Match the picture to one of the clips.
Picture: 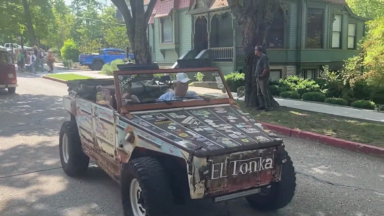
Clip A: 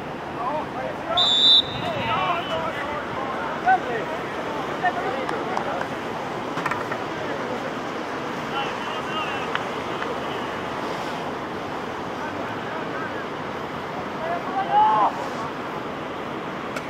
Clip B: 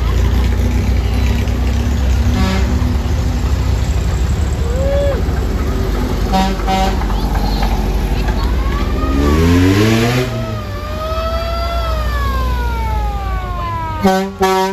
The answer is B